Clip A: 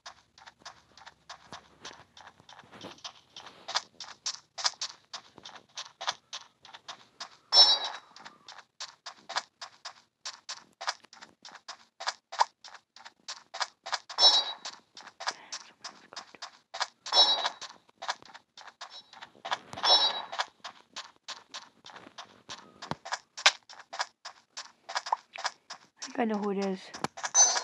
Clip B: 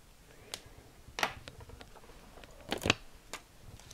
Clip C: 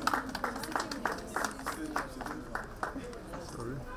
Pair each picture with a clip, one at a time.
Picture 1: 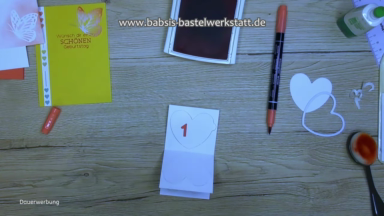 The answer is B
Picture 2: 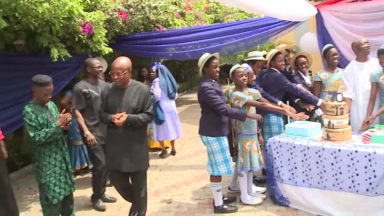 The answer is C